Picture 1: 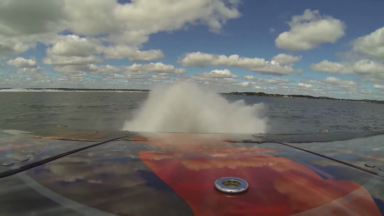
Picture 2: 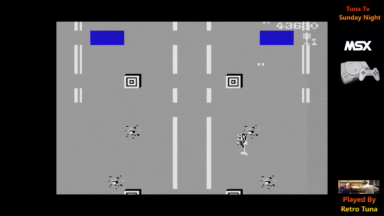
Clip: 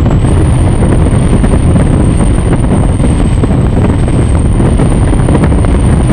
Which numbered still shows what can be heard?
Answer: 1